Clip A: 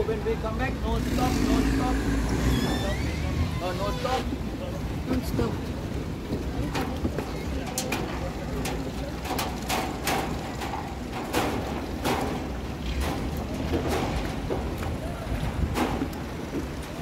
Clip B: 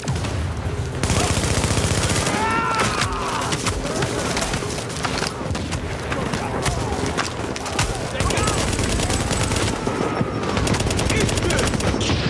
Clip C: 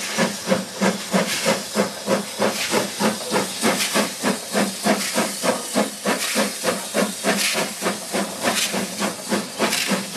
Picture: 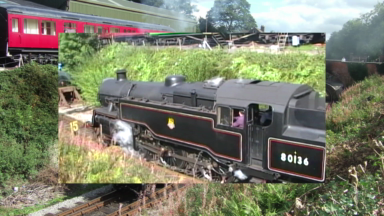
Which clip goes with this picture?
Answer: C